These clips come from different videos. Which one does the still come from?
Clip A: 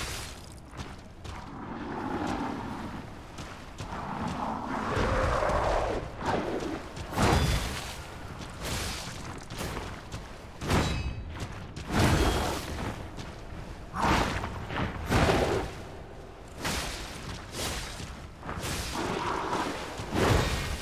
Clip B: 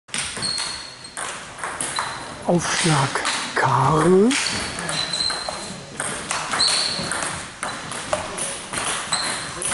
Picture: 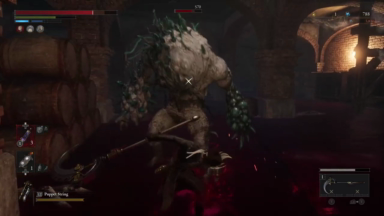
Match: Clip A